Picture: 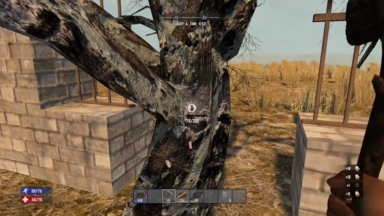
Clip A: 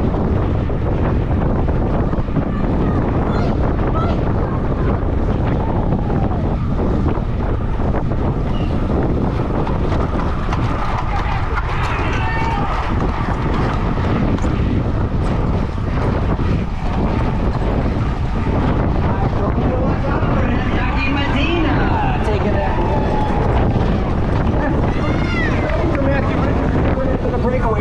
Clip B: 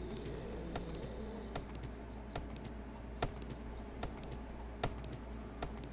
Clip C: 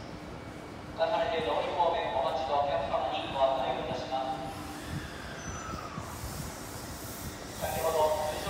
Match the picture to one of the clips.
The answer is B